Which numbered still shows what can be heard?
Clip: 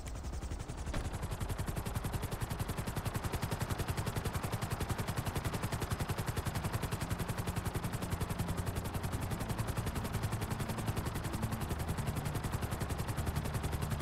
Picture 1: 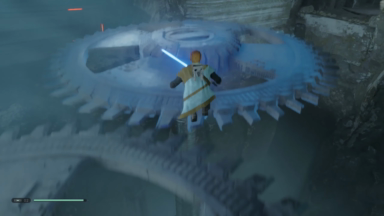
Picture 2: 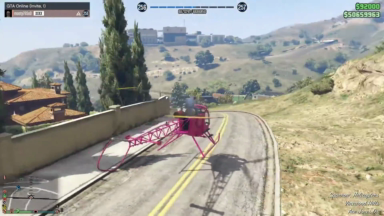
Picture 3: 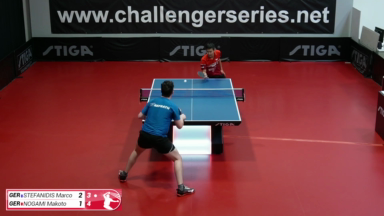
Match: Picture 2